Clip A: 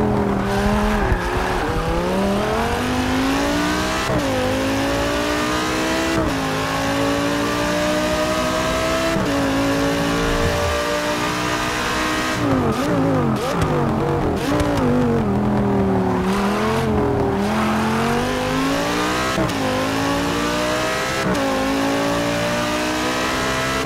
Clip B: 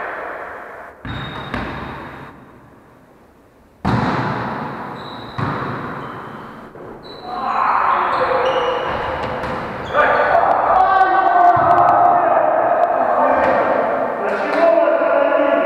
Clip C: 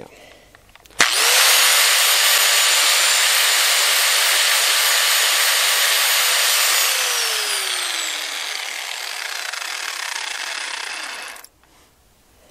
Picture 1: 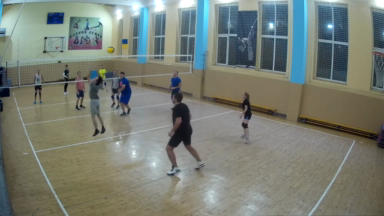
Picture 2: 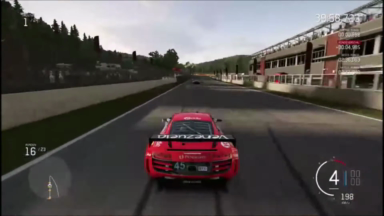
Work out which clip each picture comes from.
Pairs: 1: B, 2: A